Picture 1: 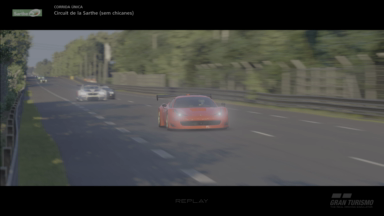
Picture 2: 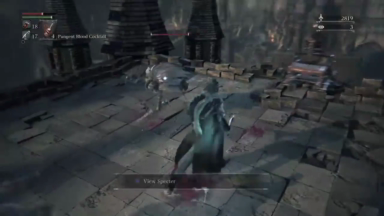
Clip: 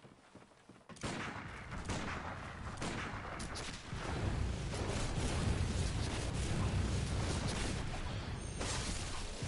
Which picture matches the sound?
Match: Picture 2